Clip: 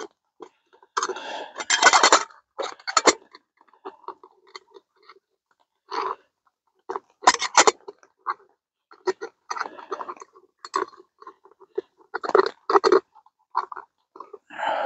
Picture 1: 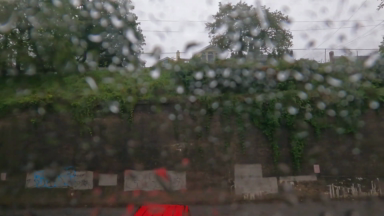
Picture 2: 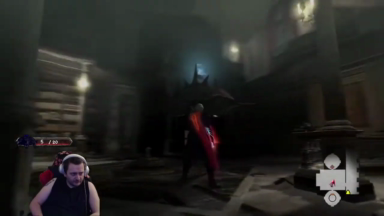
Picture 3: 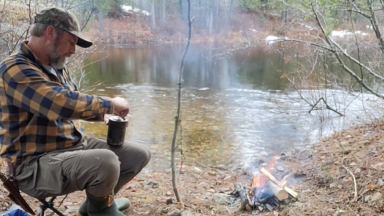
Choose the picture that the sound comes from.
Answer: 3